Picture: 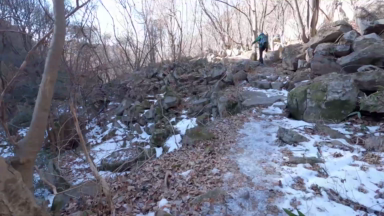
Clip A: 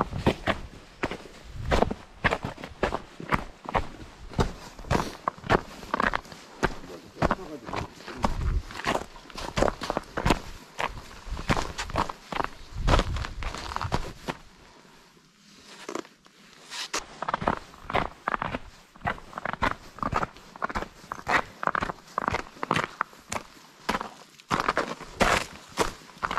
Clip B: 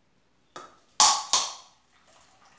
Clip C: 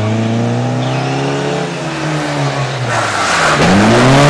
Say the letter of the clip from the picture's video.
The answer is A